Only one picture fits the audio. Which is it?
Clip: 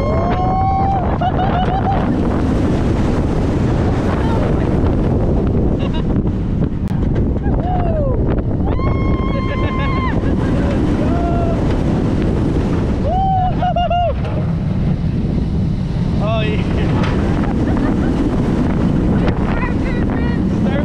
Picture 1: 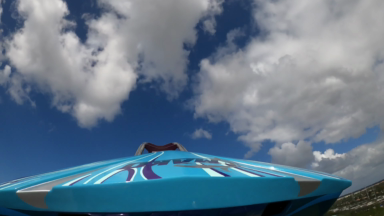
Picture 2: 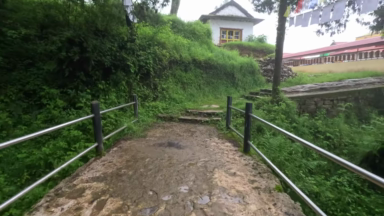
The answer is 1